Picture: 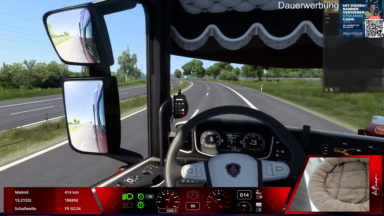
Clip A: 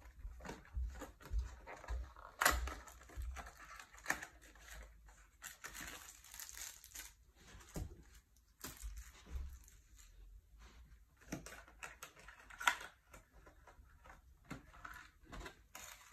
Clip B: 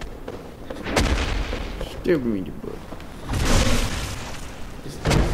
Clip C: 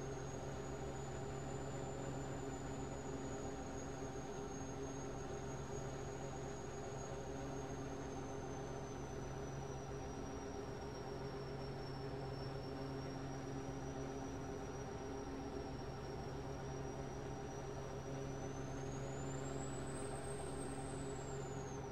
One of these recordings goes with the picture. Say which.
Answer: C